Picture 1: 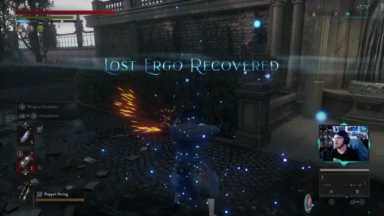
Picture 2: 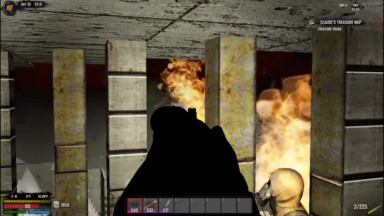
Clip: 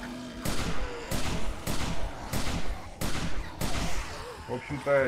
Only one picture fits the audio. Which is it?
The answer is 2